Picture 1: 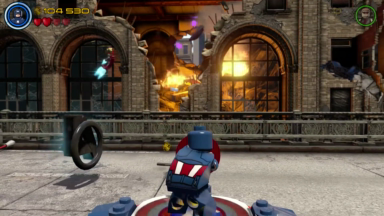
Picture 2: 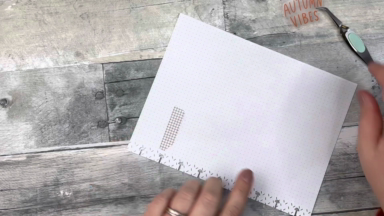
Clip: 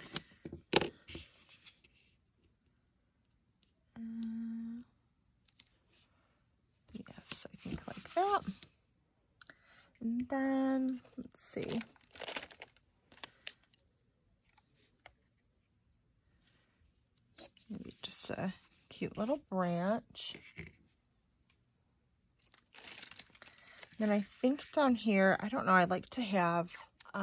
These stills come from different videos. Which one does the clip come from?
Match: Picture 2